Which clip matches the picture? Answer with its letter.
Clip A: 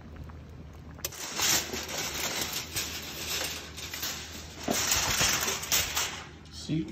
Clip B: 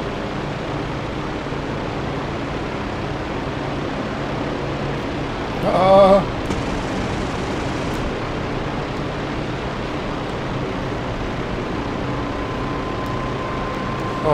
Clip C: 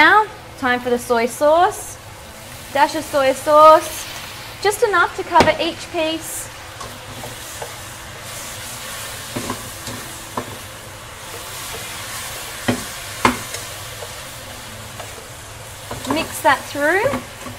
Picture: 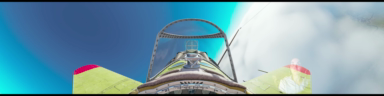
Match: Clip B